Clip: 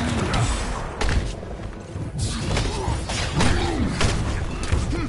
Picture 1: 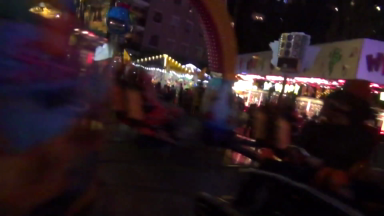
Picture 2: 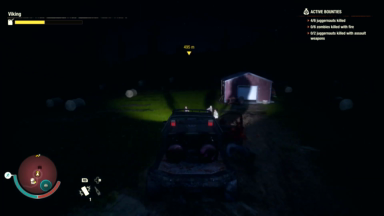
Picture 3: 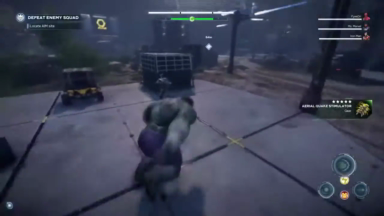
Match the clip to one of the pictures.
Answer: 3